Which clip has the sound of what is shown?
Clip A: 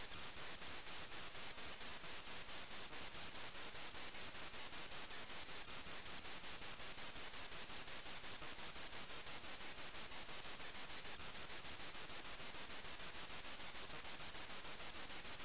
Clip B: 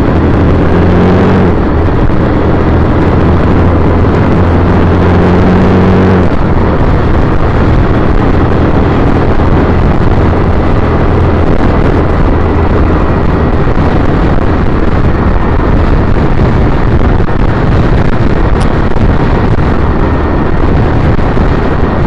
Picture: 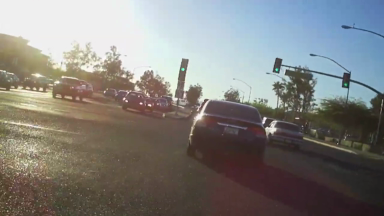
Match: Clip B